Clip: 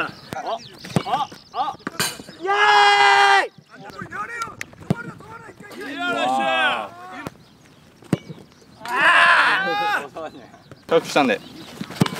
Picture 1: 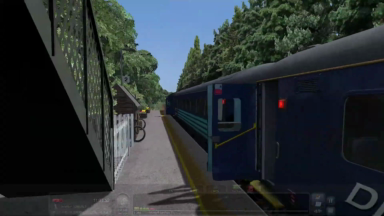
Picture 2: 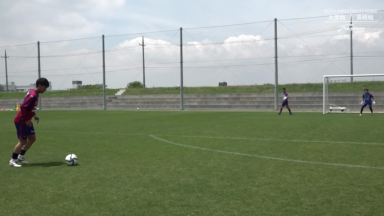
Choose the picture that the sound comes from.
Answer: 2